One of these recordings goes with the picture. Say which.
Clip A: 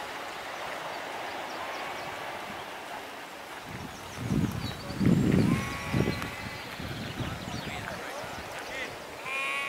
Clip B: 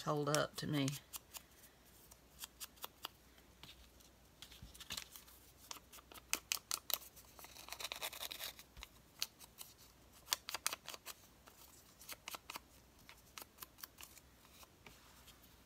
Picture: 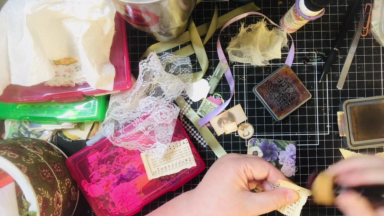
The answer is B